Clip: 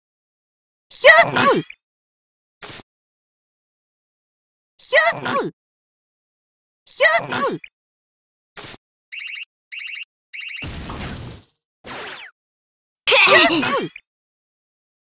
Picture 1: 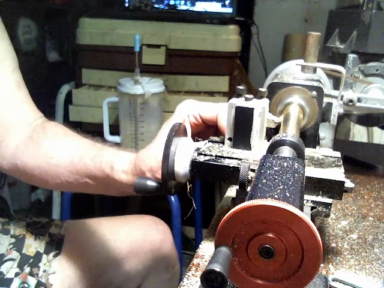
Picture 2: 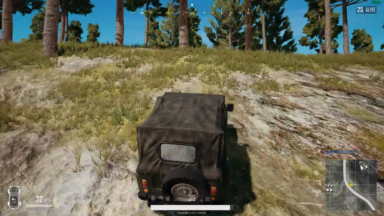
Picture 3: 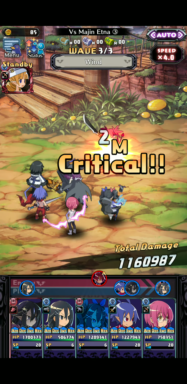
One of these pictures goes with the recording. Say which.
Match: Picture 3